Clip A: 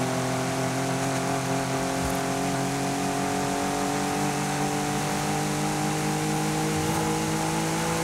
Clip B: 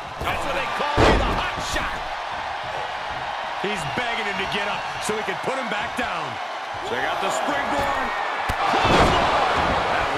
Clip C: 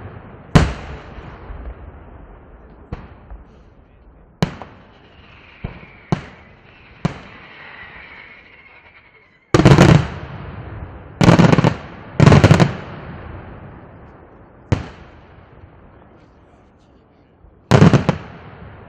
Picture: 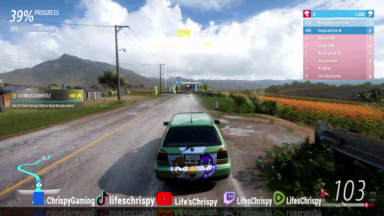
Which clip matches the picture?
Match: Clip A